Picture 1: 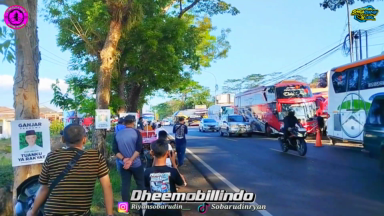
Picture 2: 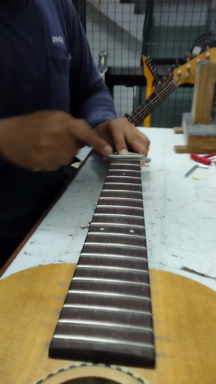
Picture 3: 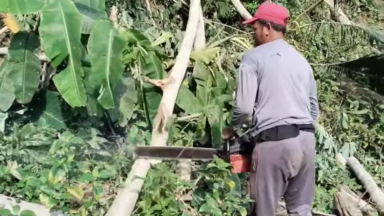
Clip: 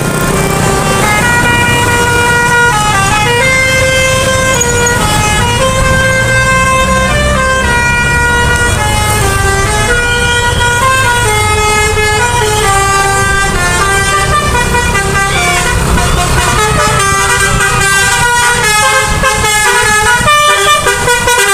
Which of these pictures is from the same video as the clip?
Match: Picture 1